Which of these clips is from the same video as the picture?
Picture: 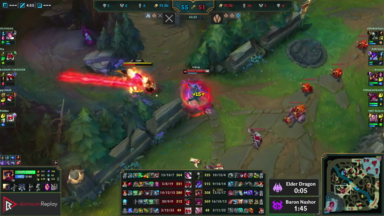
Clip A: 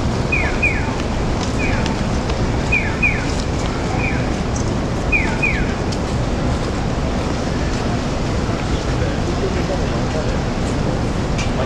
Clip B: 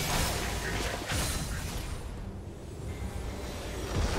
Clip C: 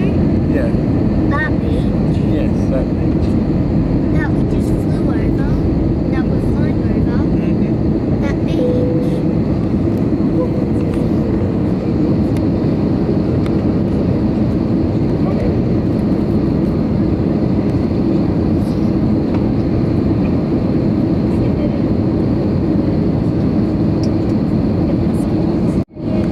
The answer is B